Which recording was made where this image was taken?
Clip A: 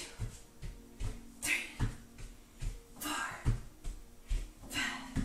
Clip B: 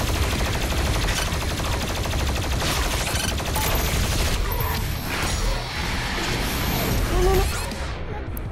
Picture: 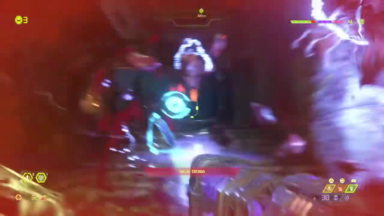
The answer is B